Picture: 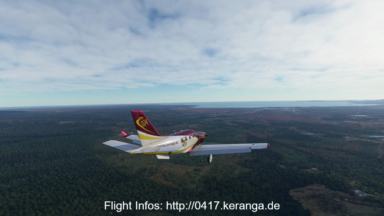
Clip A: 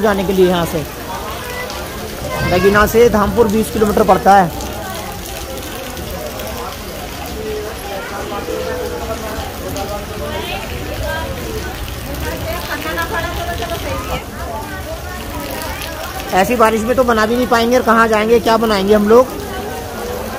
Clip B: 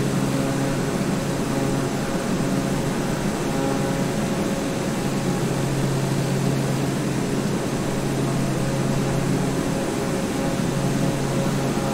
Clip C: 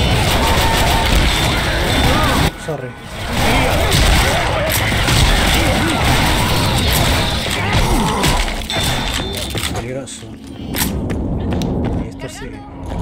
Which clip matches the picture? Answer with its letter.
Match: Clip B